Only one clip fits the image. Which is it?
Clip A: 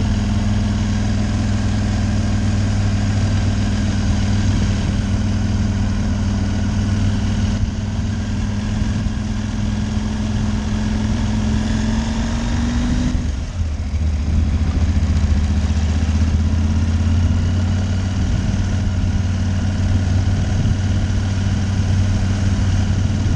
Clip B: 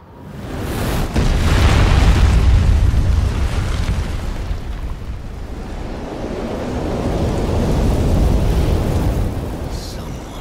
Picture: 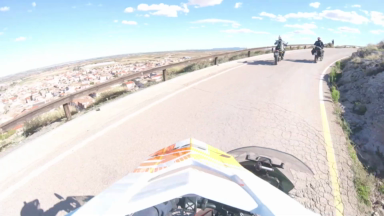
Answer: A